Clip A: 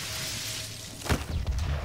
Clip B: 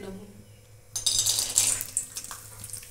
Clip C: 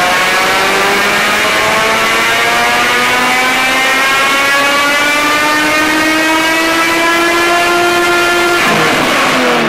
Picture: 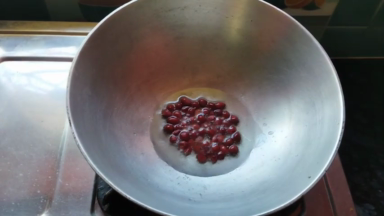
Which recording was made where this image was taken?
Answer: B